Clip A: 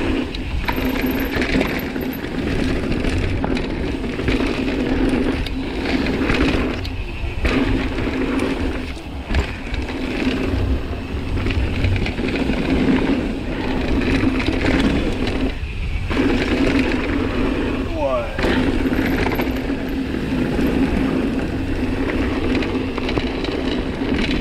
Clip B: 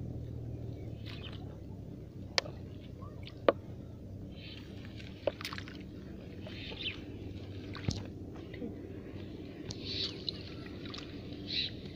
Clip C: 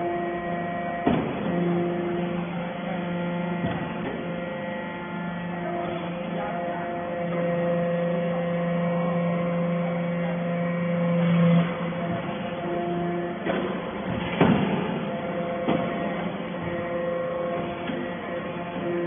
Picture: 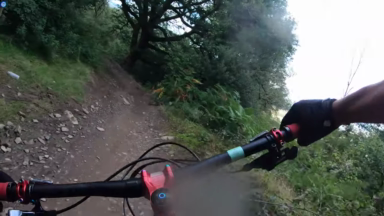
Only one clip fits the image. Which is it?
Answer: A